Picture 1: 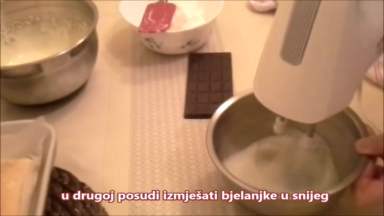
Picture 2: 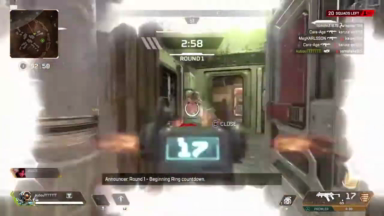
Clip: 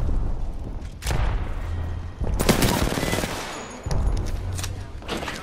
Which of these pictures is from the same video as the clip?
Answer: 2